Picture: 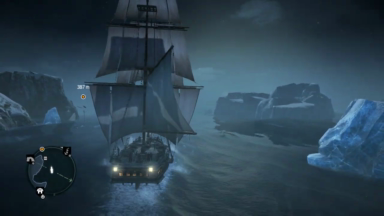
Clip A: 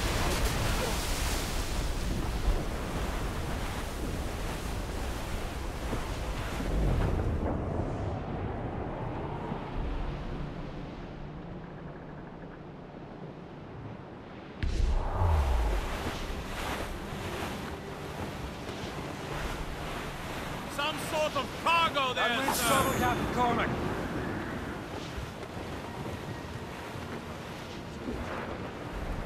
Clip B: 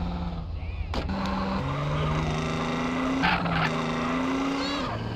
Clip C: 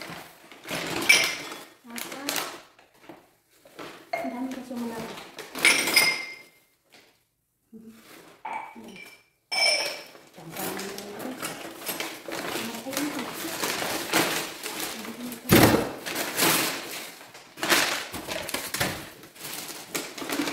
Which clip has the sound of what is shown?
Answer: A